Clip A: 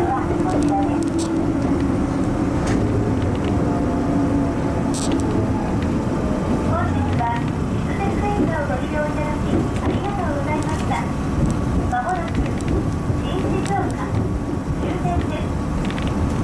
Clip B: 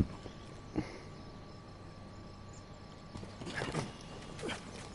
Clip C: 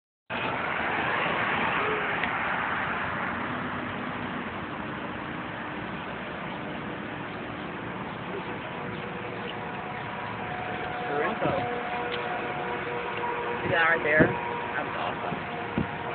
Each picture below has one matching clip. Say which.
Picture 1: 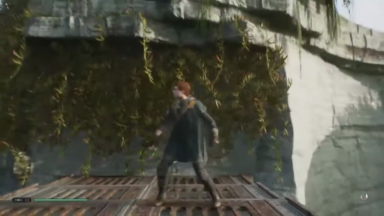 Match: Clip B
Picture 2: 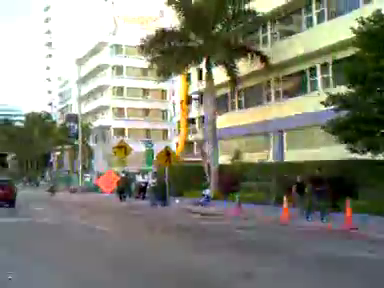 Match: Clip C